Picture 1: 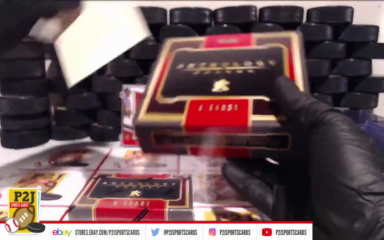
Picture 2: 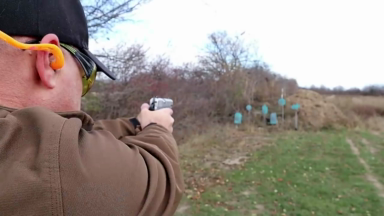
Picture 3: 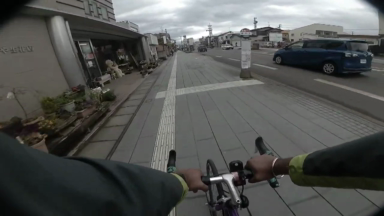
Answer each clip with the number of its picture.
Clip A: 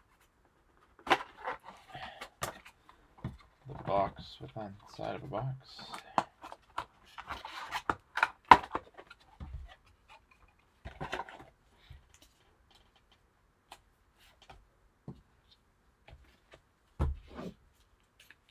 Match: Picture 1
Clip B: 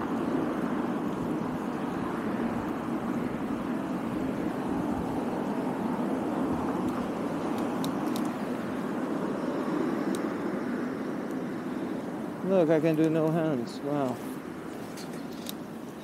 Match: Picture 3